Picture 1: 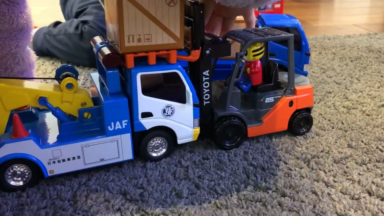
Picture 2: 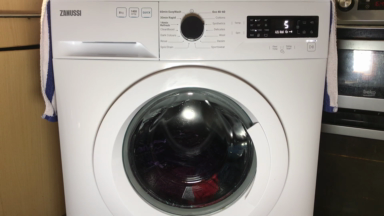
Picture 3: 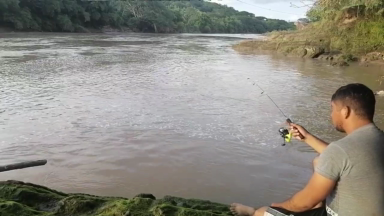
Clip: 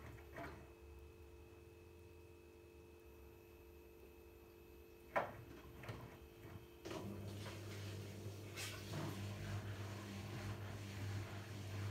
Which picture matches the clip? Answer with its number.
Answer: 2